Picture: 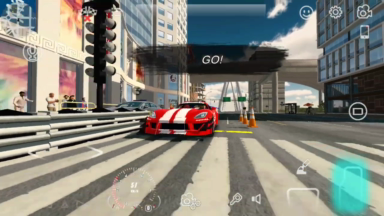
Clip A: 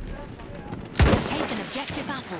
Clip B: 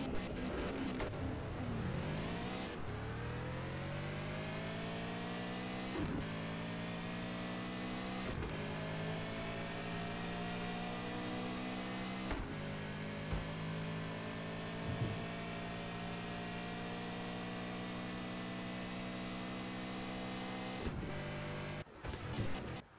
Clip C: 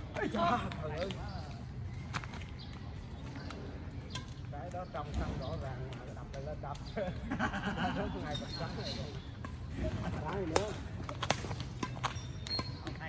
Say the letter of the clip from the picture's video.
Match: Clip B